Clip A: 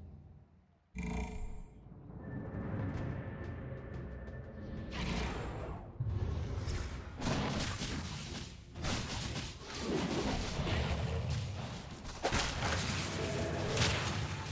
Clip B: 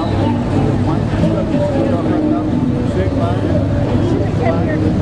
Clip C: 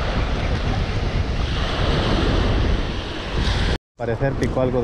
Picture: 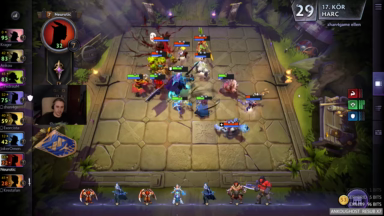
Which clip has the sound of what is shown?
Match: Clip A